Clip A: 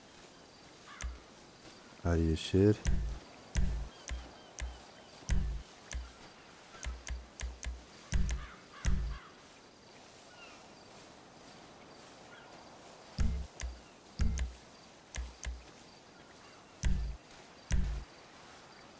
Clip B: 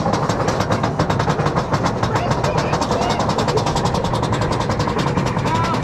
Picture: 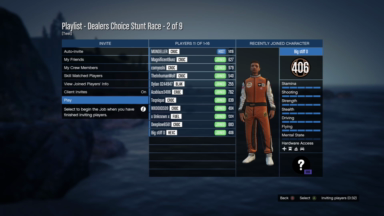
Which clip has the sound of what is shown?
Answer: A